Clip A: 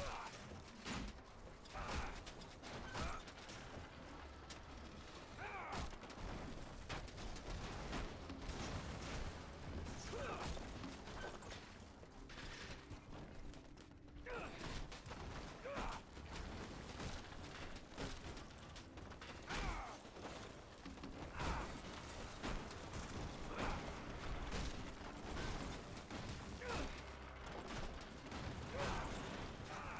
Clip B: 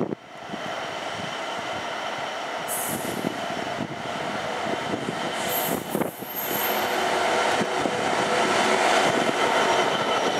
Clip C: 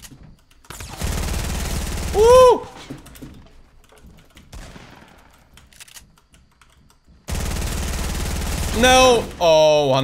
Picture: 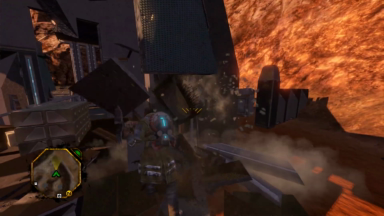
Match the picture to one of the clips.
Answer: A